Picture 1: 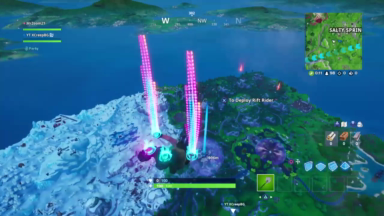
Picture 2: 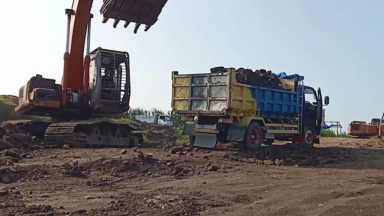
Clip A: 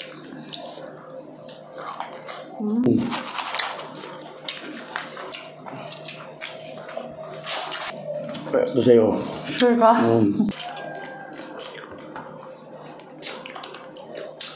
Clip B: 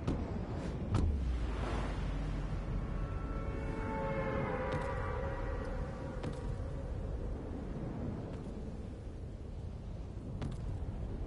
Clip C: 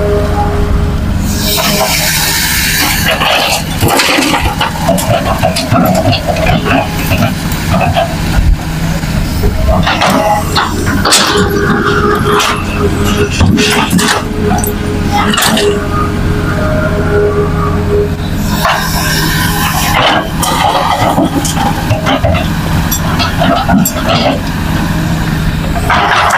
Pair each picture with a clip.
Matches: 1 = B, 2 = C